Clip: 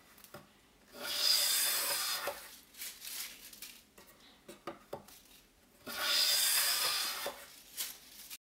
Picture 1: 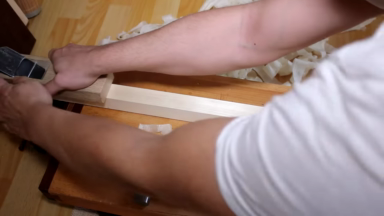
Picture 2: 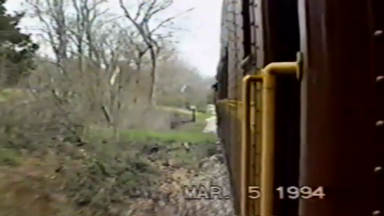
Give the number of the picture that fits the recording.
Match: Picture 1